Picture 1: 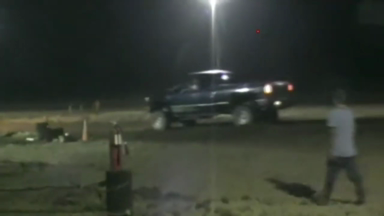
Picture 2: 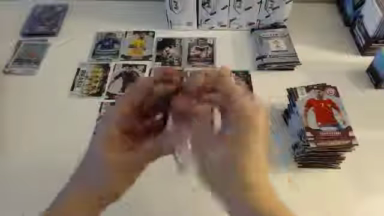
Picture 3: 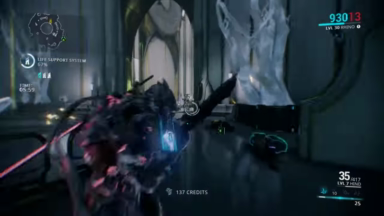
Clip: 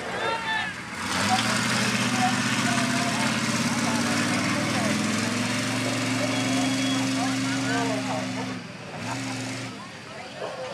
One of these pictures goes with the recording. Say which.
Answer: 1